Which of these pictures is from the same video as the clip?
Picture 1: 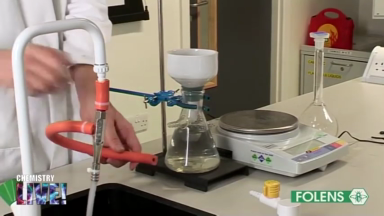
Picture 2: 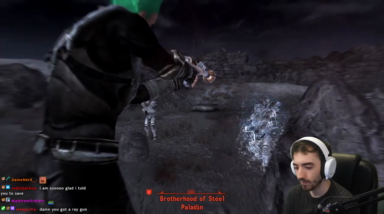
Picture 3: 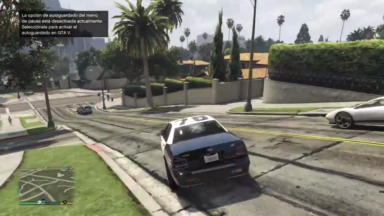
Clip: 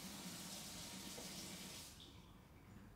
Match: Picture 1